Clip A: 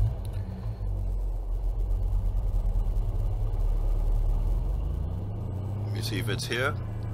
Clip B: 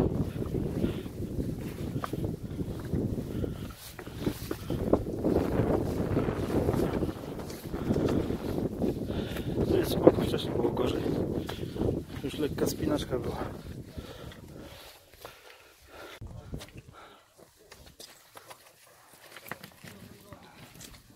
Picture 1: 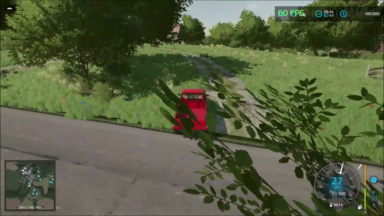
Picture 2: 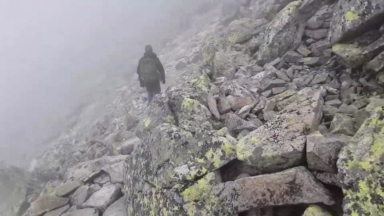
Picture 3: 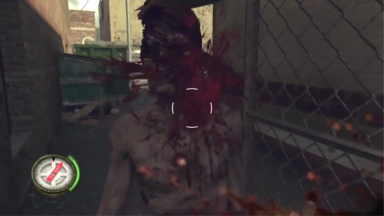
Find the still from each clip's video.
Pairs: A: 1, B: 2